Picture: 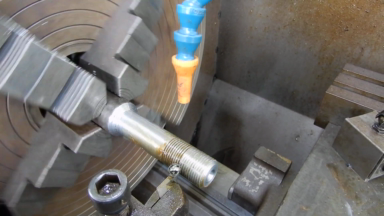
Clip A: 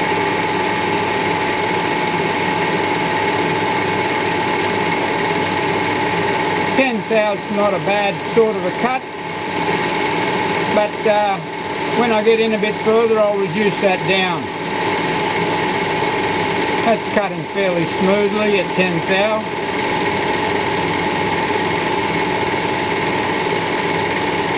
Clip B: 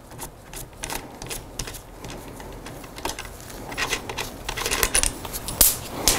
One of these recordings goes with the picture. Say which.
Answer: A